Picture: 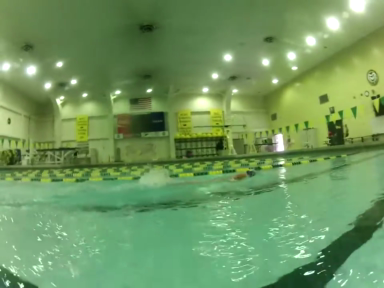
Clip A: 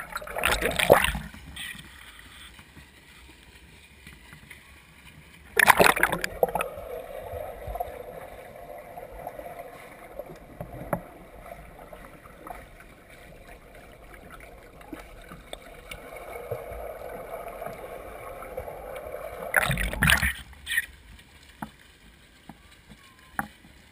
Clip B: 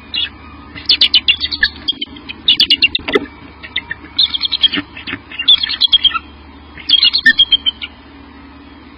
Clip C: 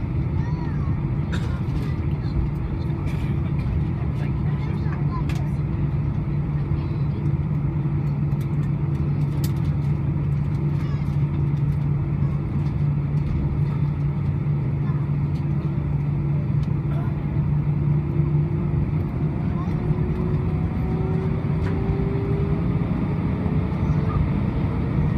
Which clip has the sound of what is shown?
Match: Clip A